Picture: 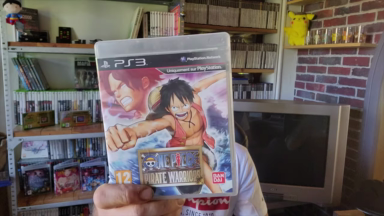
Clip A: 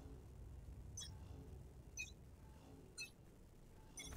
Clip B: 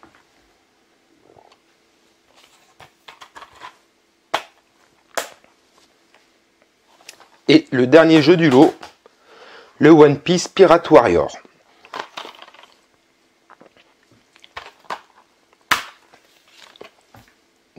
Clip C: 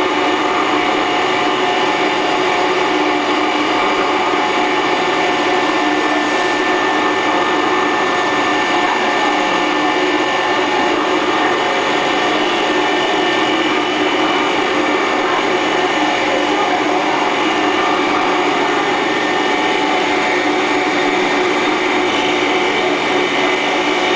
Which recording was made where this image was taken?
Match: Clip B